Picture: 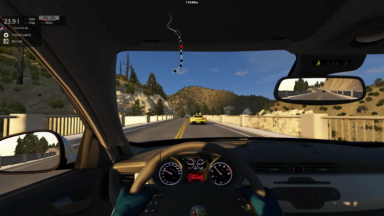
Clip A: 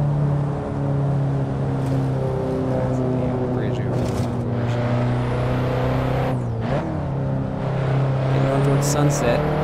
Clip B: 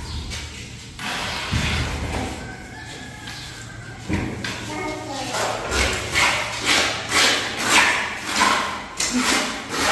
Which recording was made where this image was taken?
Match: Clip A